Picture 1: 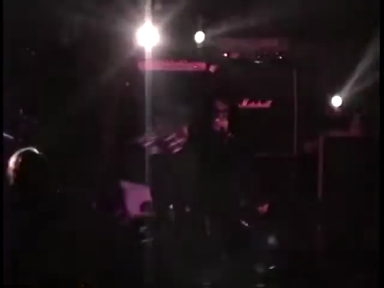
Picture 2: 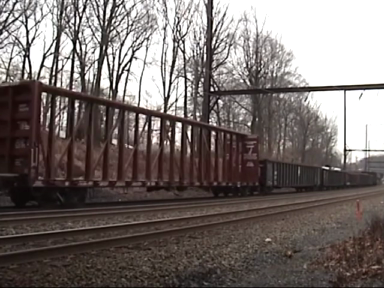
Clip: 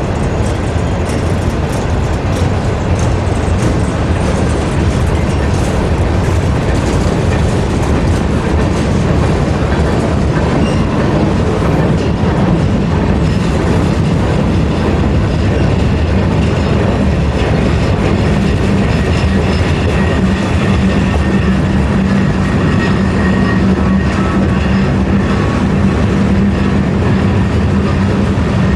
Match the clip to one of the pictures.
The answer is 2